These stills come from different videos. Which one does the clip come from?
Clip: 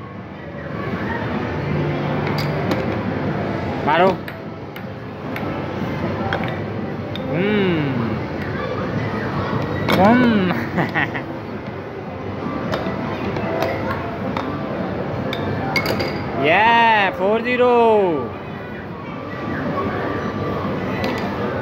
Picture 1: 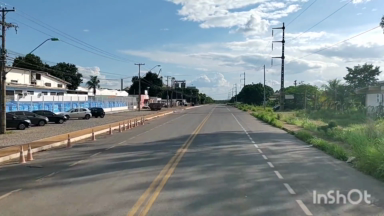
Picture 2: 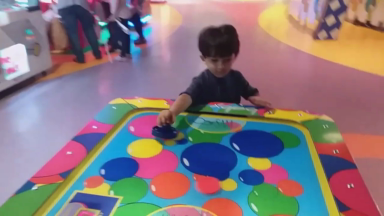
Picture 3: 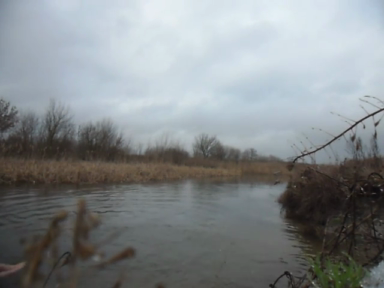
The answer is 2